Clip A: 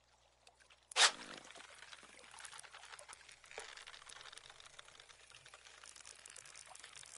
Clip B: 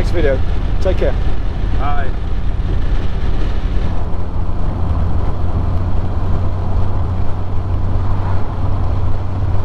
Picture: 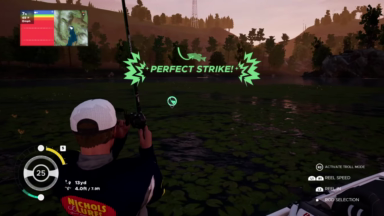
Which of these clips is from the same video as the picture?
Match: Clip A